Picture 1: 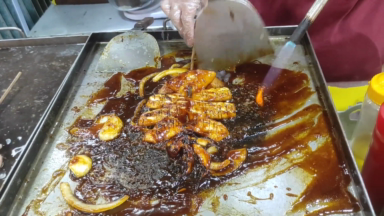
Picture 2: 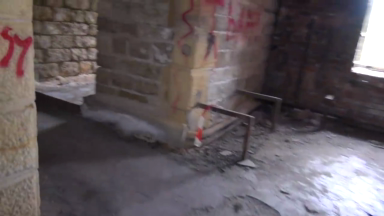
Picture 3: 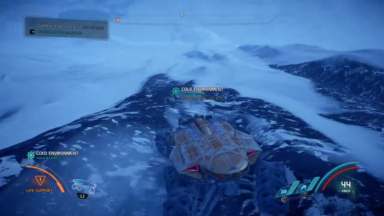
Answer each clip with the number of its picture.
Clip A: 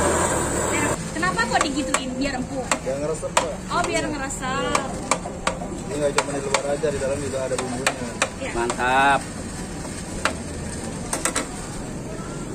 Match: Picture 1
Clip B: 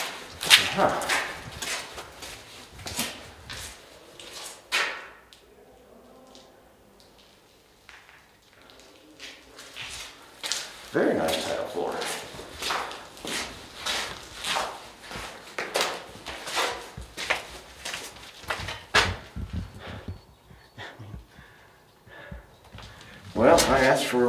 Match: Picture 2